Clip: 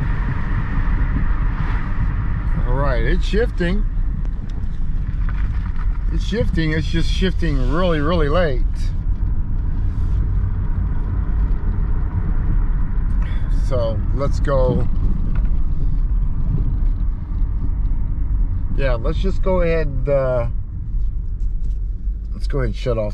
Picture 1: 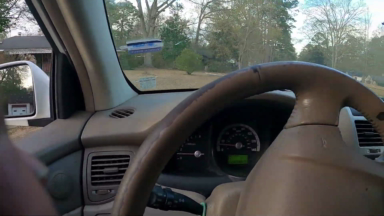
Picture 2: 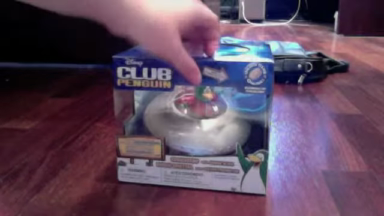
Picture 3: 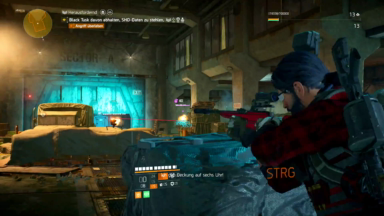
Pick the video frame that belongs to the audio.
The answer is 1